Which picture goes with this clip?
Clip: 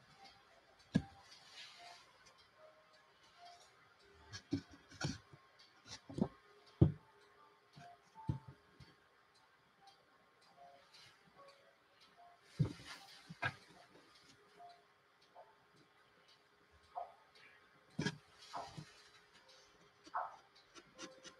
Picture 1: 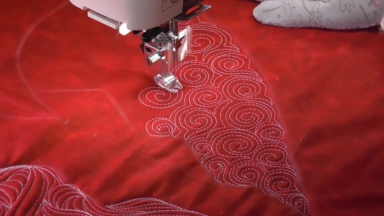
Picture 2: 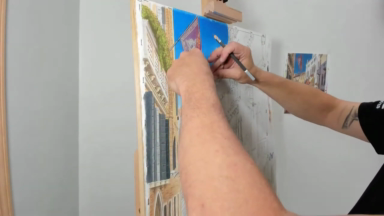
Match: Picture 2